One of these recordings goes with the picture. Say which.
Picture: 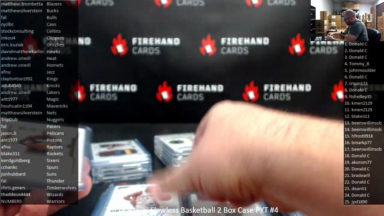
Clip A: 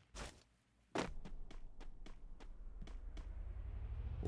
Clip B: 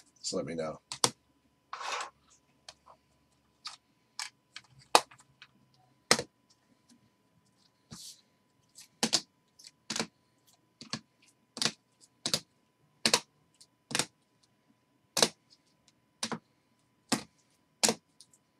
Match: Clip B